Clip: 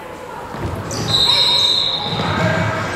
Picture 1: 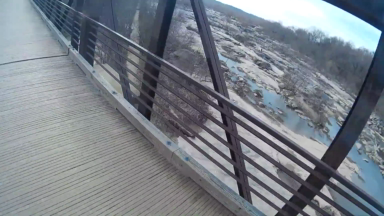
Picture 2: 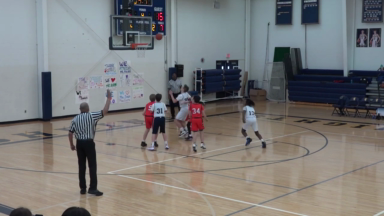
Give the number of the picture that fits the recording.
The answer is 2